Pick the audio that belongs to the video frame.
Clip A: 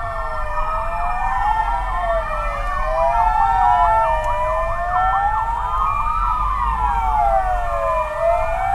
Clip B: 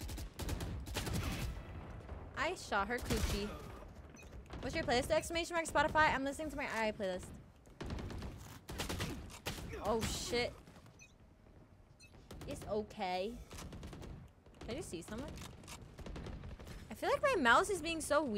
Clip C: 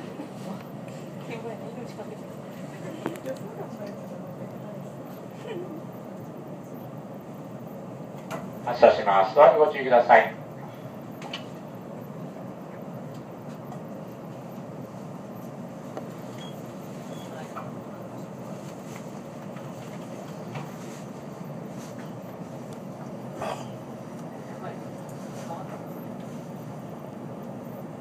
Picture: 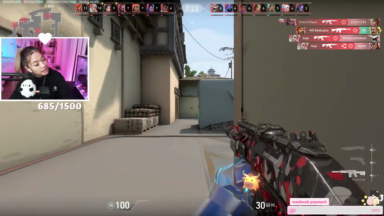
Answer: B